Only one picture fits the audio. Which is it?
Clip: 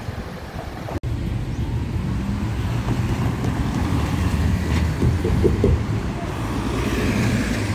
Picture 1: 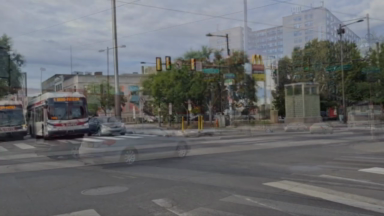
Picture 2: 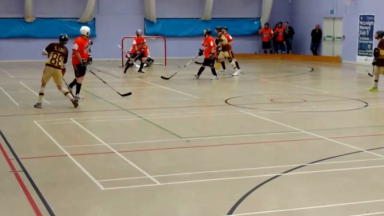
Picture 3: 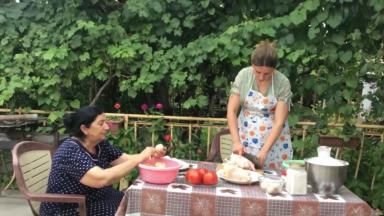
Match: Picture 1